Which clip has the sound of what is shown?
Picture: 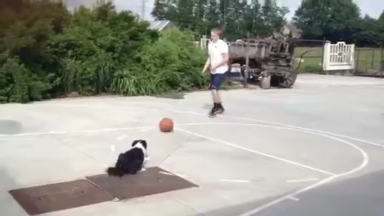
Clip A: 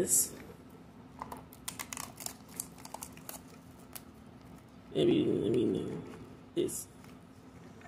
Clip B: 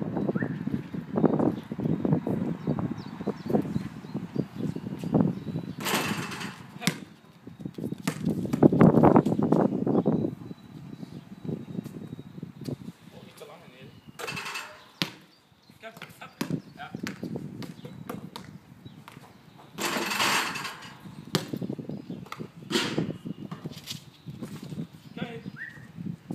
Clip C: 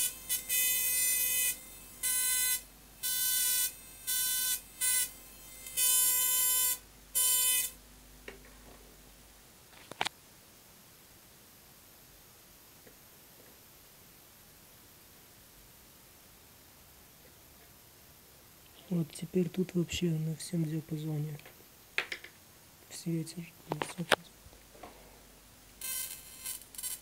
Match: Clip B